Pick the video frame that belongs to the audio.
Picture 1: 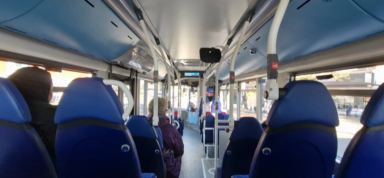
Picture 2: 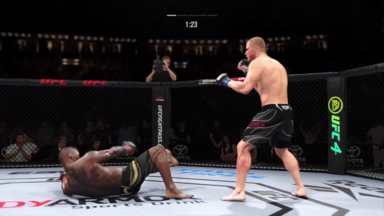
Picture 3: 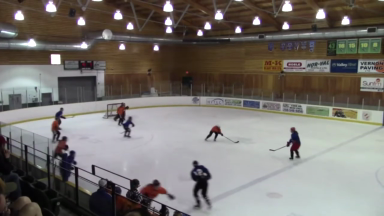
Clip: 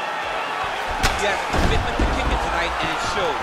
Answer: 2